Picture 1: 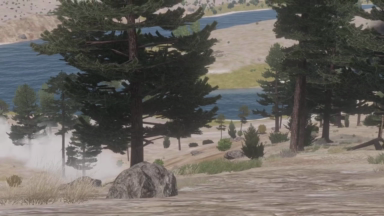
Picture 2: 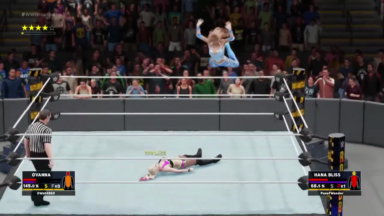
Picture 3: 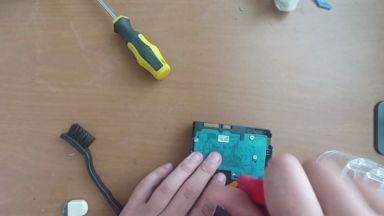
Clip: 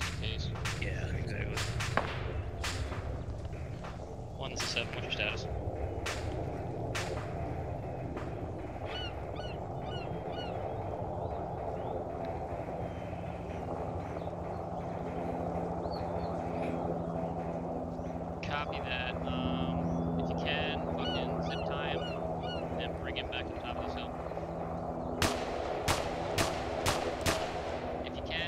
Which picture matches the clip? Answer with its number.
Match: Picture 1